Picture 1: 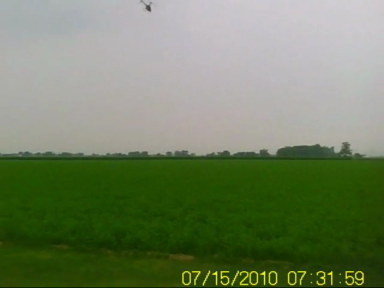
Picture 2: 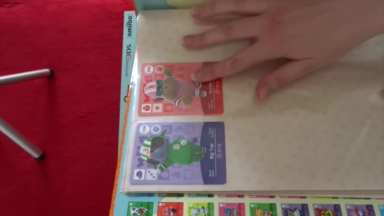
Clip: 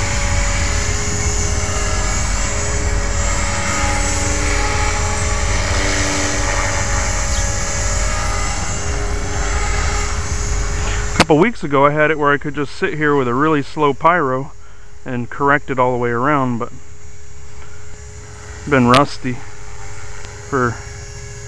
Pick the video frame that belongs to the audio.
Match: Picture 1